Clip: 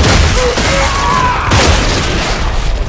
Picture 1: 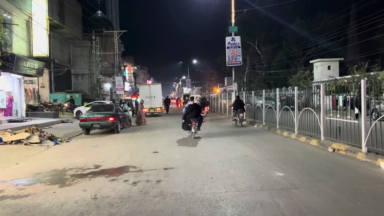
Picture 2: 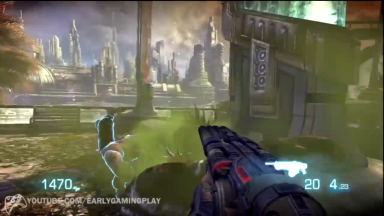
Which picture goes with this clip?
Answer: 2